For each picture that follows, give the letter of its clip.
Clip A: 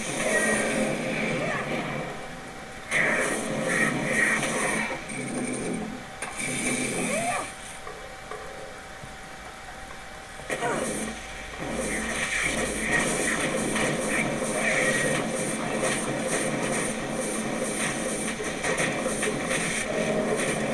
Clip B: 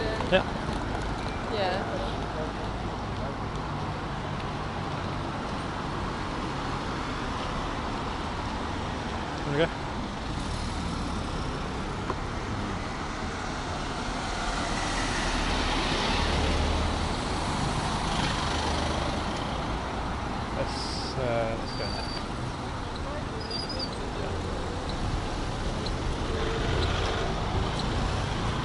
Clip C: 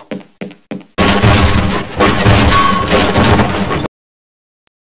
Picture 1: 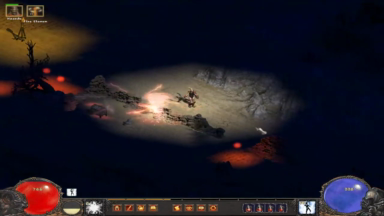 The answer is A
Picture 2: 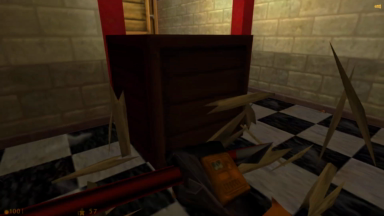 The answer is C